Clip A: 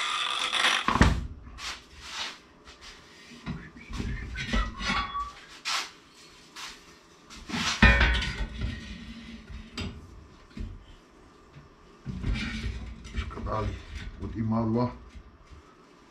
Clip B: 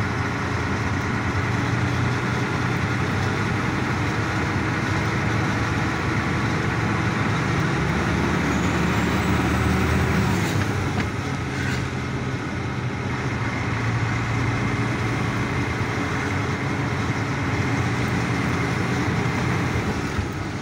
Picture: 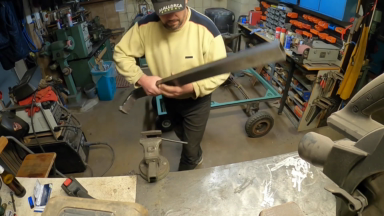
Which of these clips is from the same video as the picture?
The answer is A